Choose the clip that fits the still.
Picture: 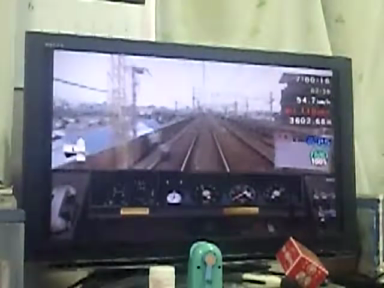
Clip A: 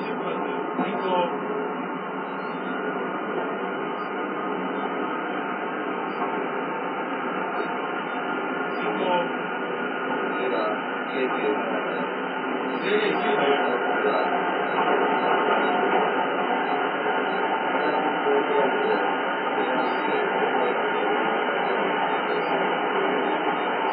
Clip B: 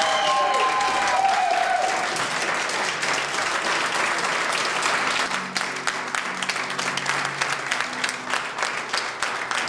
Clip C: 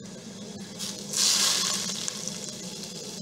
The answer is A